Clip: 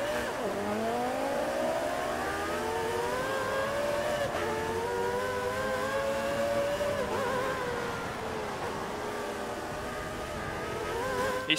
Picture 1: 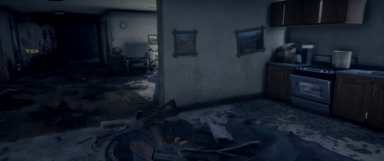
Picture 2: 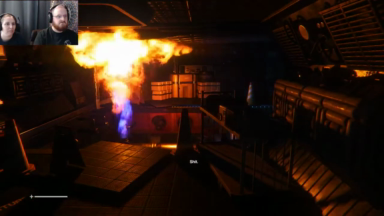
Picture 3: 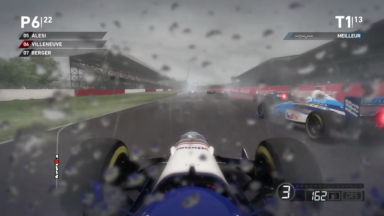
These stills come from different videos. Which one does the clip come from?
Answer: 3